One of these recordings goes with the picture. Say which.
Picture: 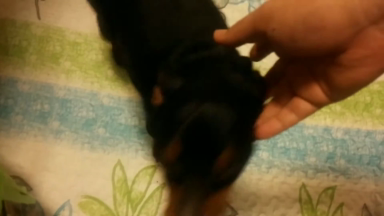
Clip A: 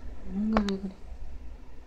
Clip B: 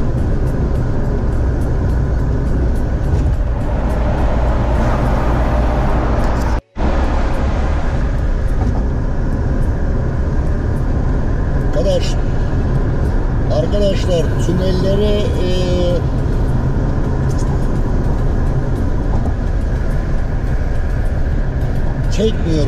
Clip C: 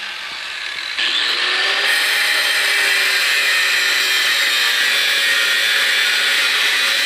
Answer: A